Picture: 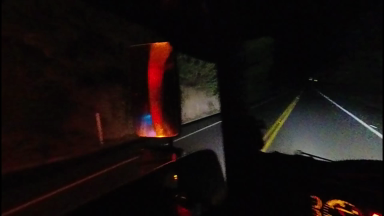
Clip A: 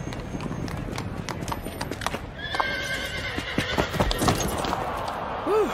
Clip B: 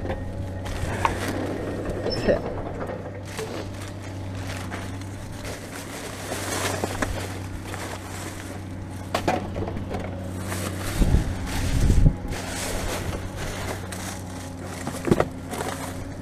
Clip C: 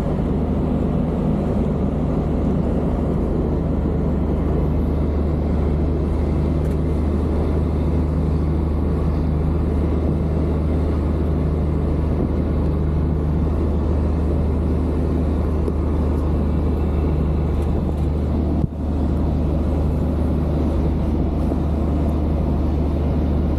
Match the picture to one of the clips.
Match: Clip C